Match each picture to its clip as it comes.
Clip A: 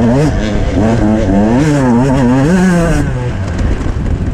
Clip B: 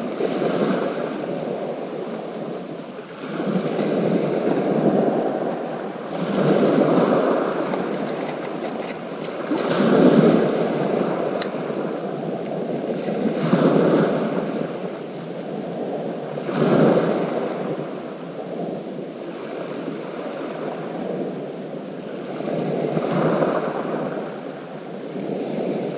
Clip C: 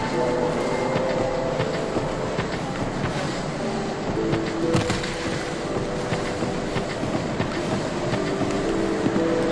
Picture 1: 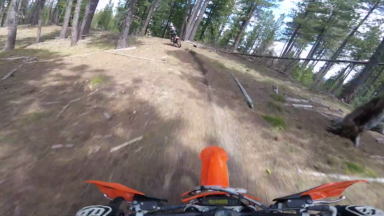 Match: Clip A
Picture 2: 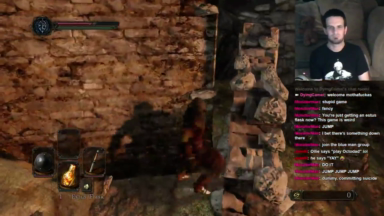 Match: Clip C